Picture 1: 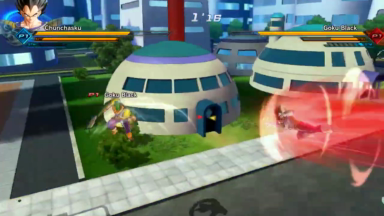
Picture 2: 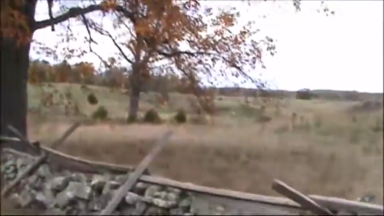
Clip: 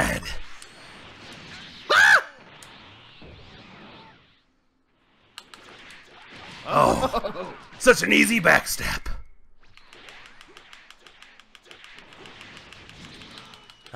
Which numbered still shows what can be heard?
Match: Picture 1